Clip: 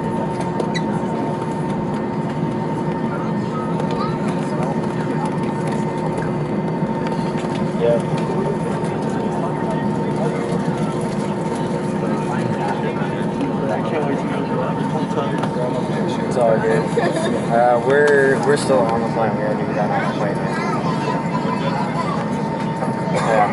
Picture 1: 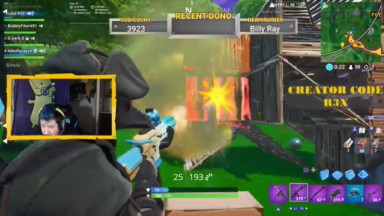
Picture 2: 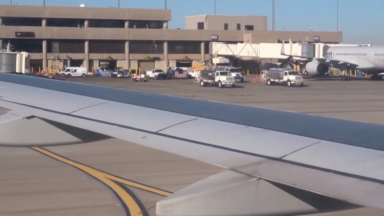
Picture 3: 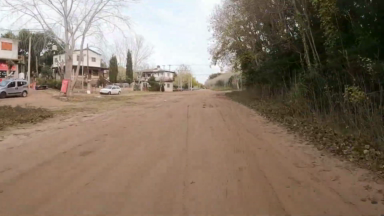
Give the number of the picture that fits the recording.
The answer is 2